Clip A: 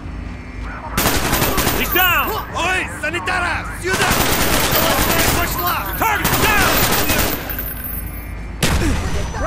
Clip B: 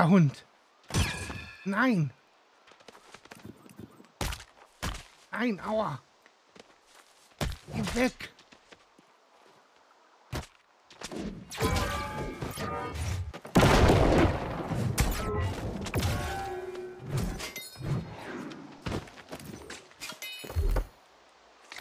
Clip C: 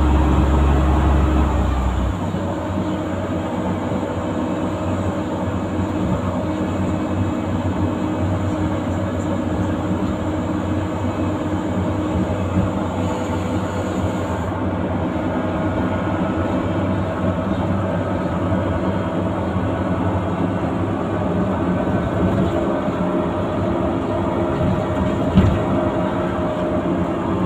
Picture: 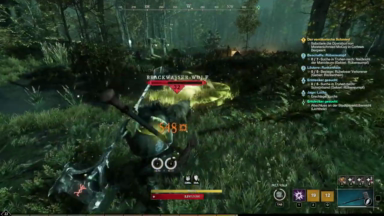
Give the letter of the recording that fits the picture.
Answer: B